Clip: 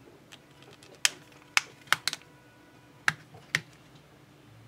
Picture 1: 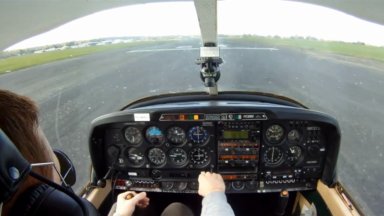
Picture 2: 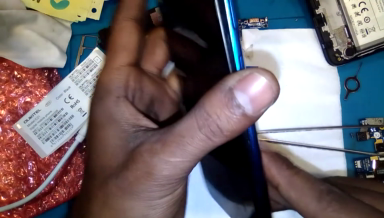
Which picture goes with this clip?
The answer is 2